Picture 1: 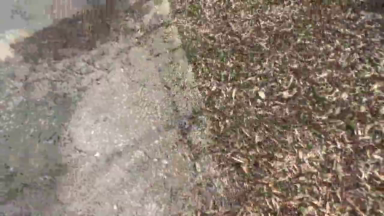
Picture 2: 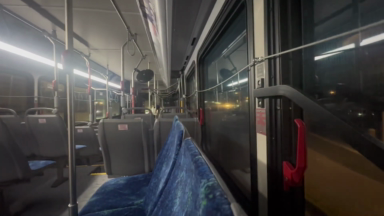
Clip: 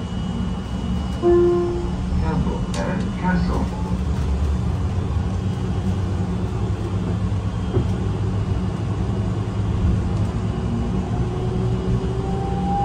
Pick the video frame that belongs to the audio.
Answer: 2